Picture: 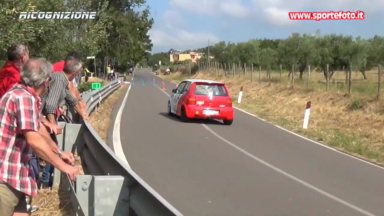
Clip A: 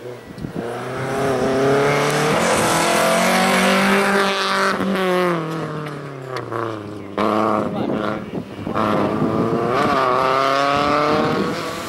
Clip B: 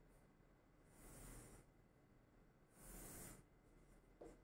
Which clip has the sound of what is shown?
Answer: A